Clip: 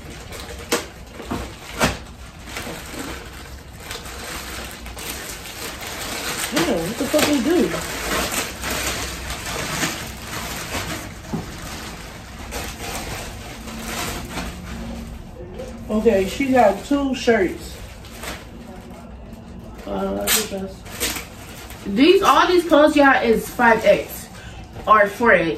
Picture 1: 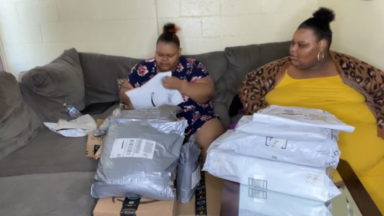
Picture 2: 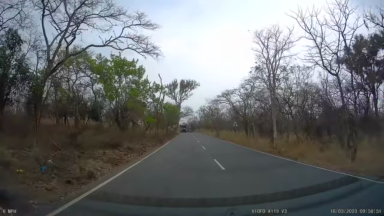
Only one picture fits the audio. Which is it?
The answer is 1